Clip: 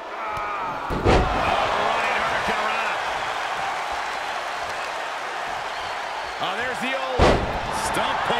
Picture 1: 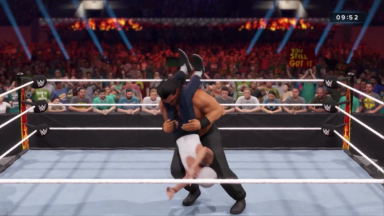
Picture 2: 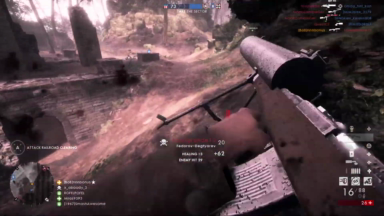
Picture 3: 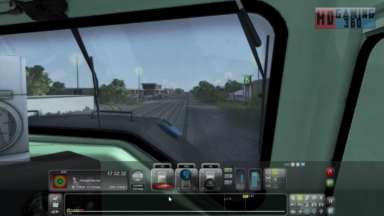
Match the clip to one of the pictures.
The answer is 1